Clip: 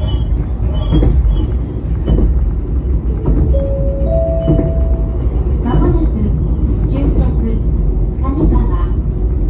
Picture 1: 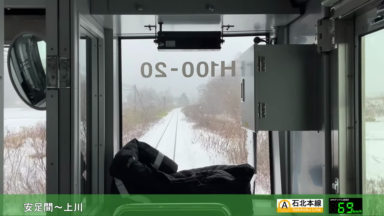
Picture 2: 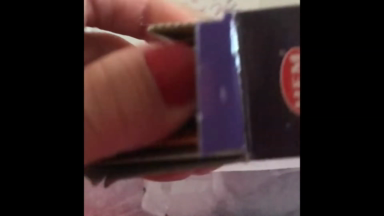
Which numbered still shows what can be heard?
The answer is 1